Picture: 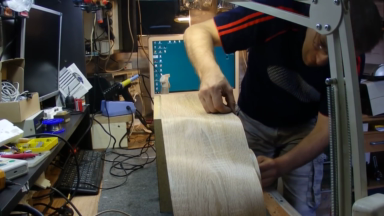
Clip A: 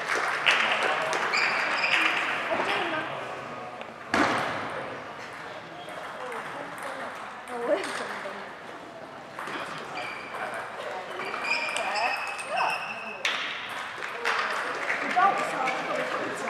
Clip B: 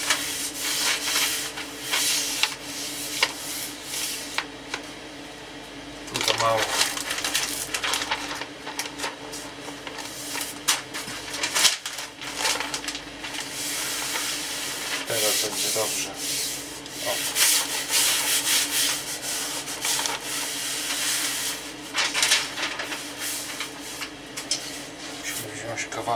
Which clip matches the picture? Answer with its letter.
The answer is B